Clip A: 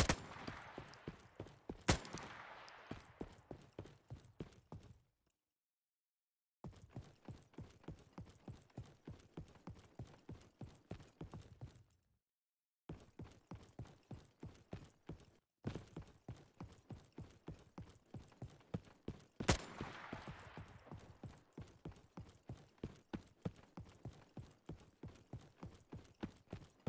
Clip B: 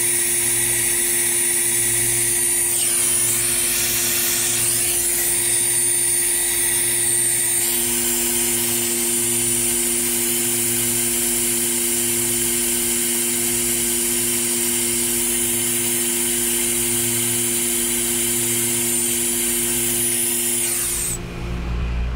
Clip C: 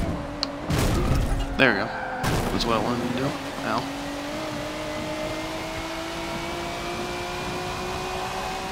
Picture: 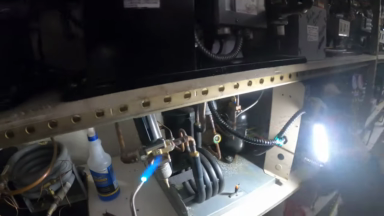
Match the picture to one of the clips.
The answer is B